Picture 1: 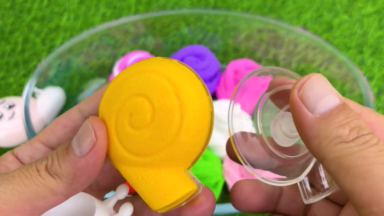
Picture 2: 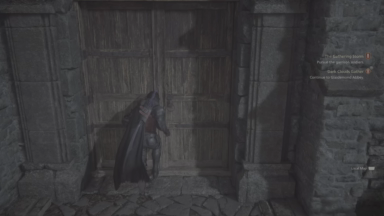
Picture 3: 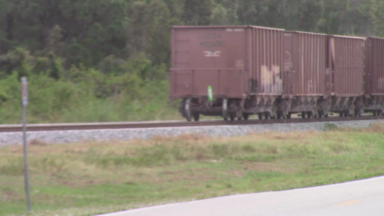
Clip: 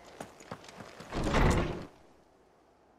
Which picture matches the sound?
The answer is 2